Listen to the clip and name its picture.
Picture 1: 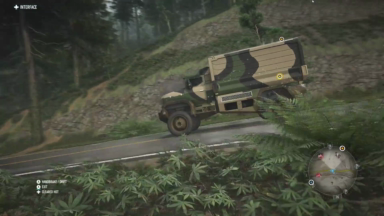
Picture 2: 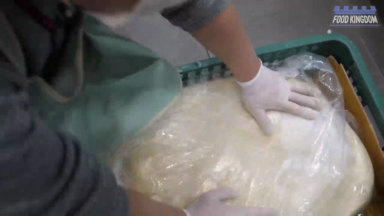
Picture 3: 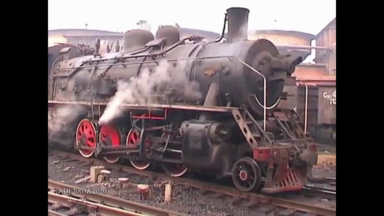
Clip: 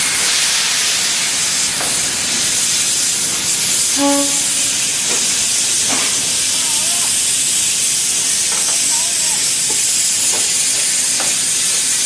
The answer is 3